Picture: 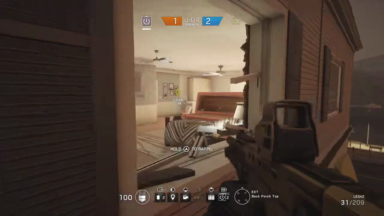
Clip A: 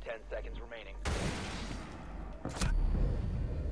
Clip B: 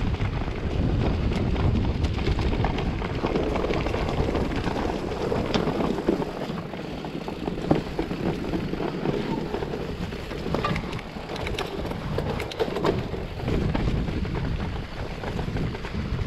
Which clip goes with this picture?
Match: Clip A